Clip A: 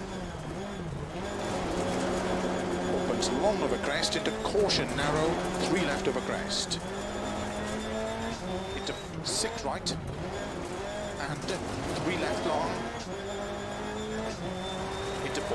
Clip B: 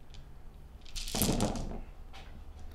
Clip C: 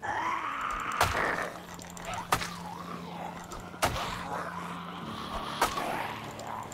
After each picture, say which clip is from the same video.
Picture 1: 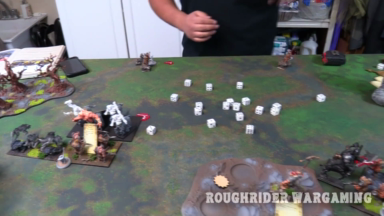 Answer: B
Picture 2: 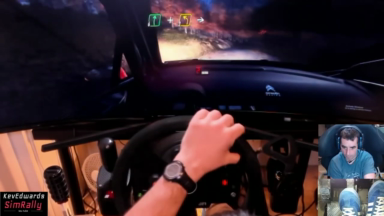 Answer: A